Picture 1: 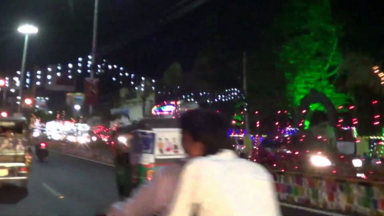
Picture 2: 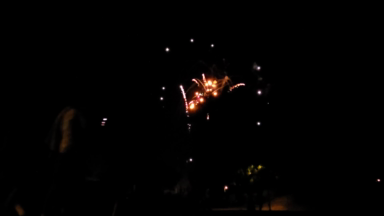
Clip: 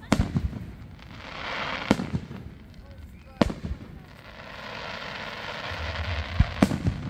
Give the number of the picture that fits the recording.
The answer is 2